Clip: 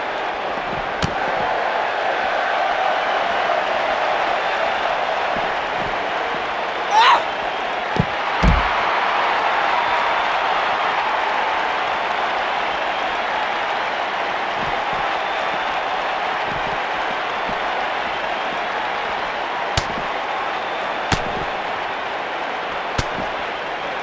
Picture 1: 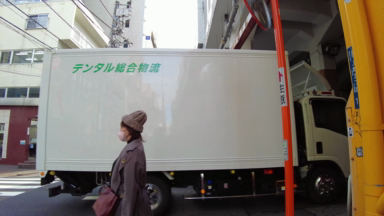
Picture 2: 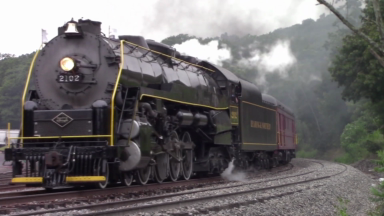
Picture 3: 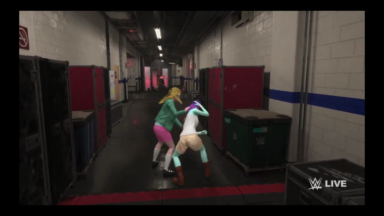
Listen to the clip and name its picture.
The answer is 3